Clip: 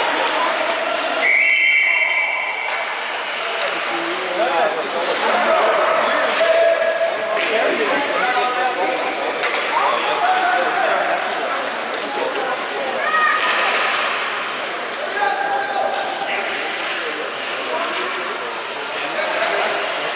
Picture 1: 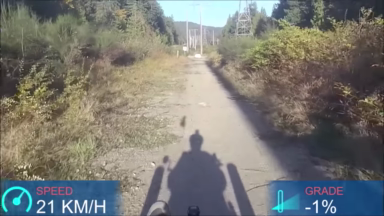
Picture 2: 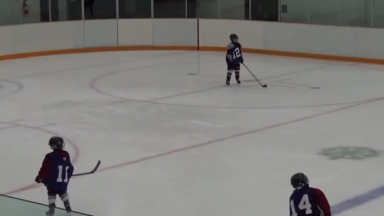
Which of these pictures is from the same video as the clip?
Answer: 2